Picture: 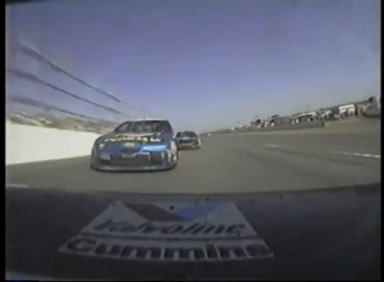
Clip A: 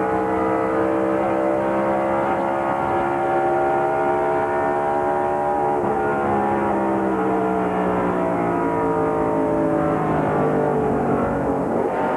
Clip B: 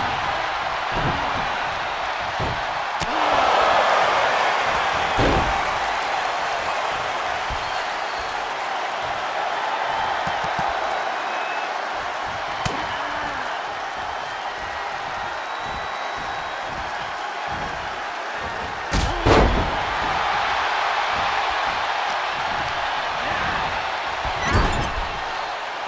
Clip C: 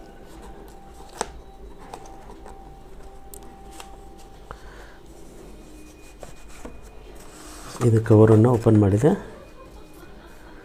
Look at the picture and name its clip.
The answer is A